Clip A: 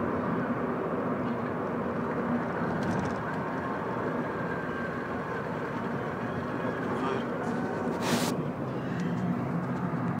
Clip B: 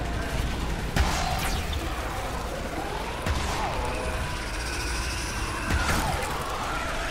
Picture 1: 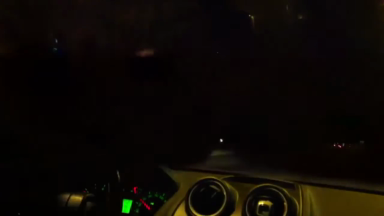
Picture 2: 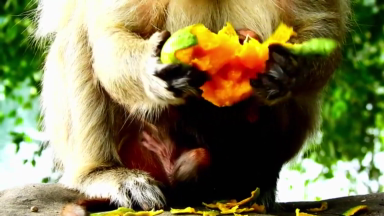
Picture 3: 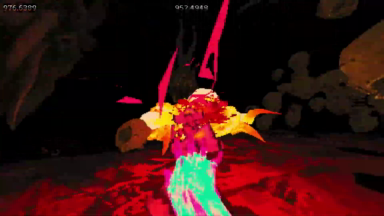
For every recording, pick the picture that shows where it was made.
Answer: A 1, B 3